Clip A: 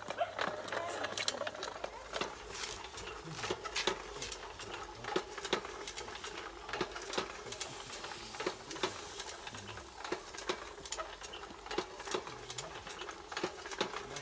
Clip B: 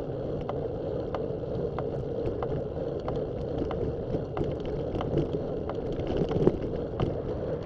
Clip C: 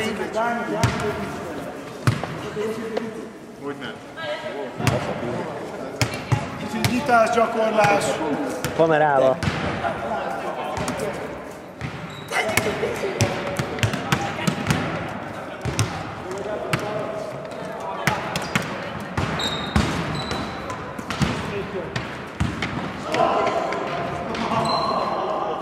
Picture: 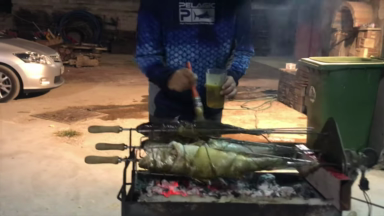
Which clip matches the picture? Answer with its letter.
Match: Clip A